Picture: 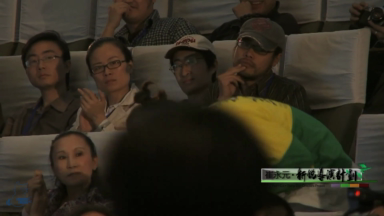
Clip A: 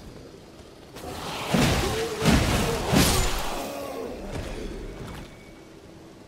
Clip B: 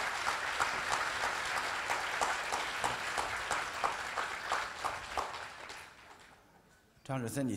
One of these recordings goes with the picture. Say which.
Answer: B